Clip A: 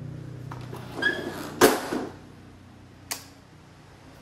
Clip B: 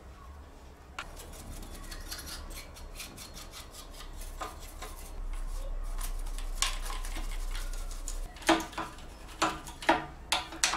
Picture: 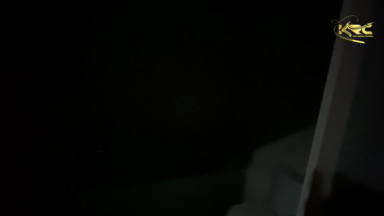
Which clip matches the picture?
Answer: A